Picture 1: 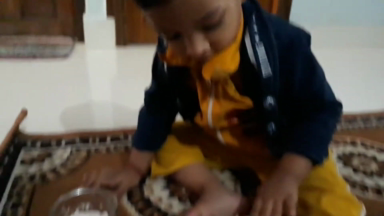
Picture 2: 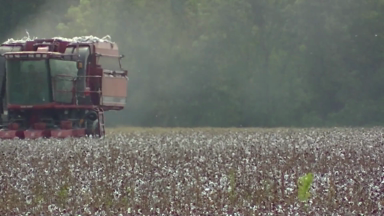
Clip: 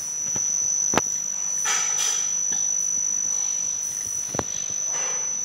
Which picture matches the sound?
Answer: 1